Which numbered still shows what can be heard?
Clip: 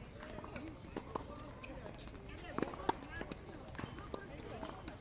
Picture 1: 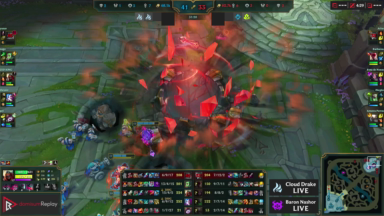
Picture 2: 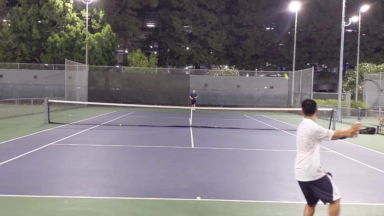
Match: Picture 2